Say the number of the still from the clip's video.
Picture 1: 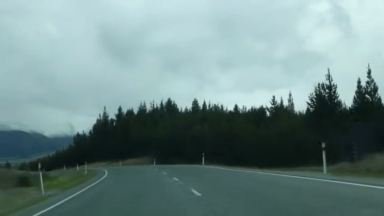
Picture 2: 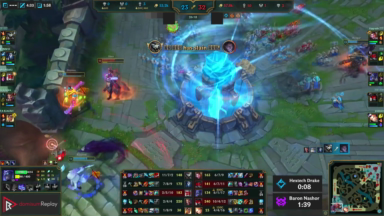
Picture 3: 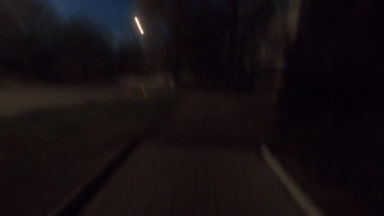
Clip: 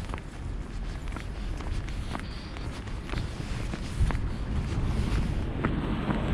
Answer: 3